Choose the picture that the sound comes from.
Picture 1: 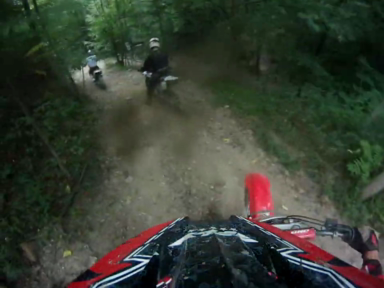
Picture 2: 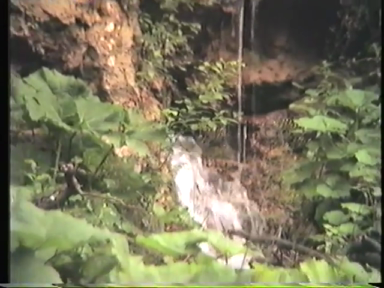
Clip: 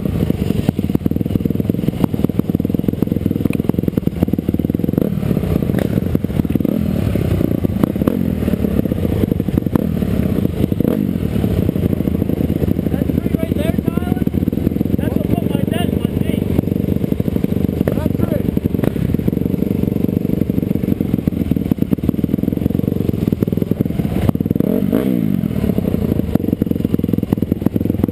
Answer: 1